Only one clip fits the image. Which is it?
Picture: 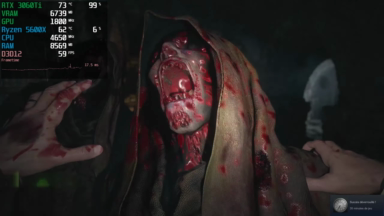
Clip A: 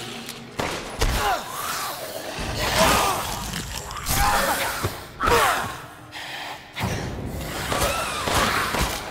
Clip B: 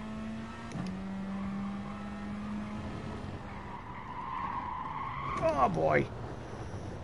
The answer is A